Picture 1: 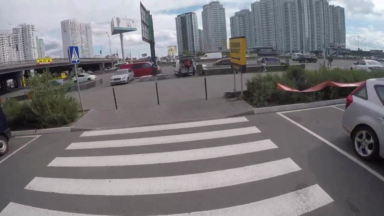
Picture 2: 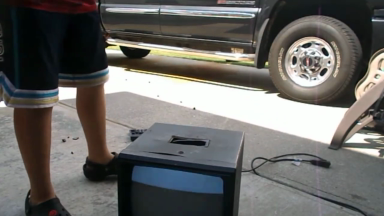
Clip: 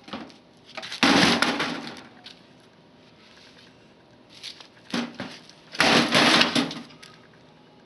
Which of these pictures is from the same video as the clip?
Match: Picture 2